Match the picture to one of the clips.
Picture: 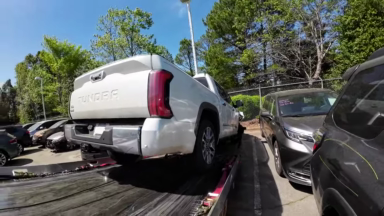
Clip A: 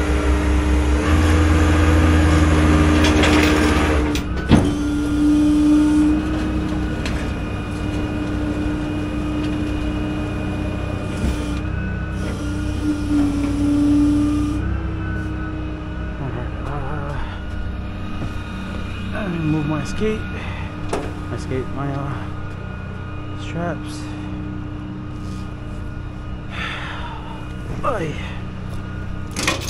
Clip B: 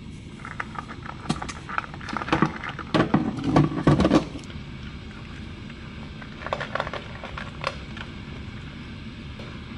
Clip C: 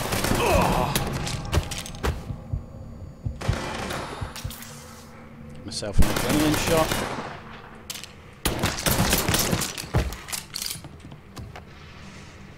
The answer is A